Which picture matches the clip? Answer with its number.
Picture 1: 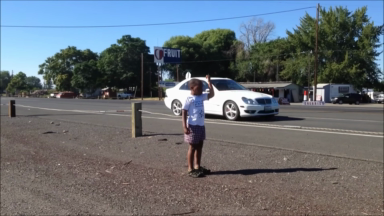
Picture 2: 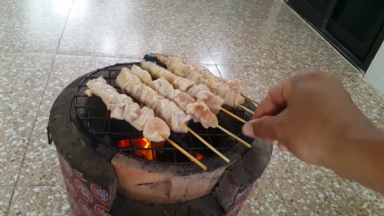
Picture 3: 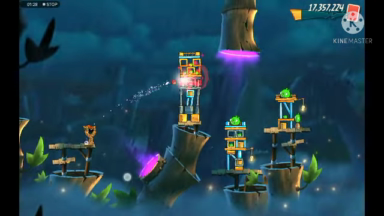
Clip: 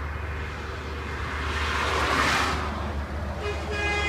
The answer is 1